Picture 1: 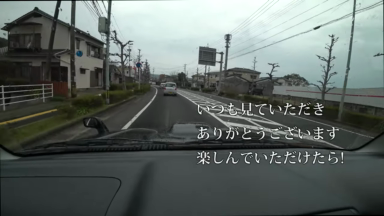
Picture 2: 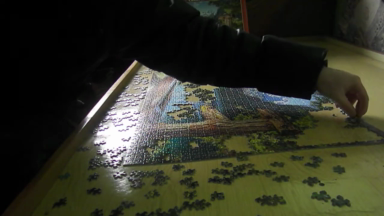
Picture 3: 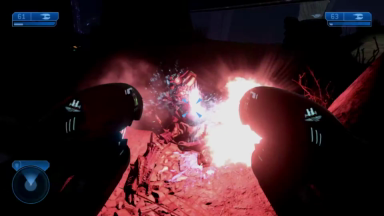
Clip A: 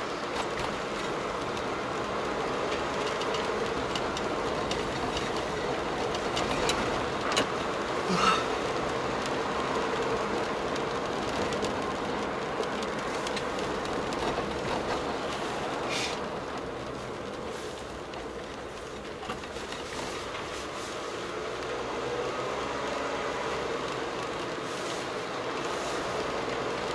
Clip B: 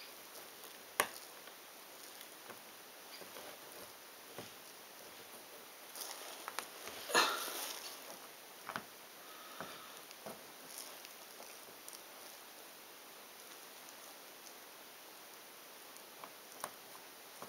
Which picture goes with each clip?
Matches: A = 1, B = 2